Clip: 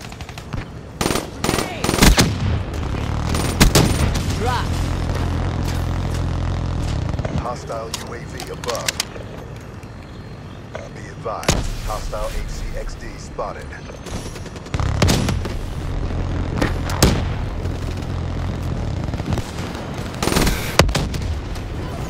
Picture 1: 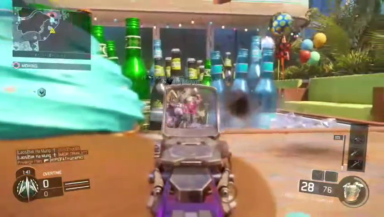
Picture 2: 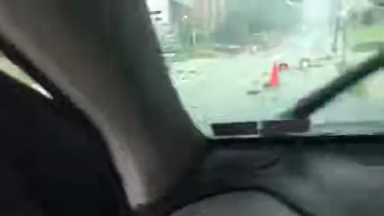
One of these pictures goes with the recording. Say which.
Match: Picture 1